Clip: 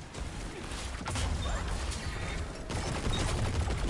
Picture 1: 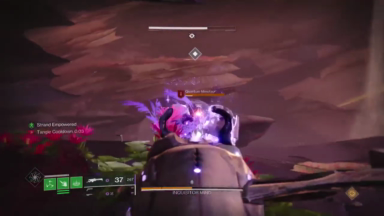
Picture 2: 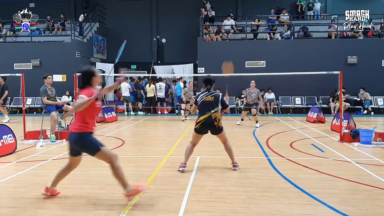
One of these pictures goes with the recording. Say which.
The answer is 1